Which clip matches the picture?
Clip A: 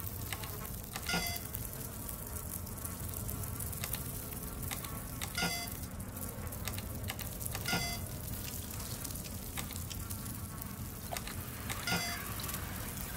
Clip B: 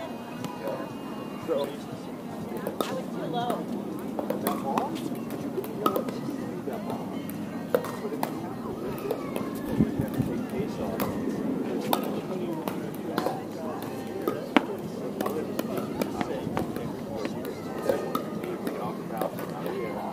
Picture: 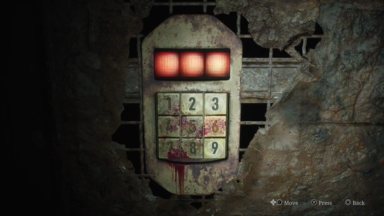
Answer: A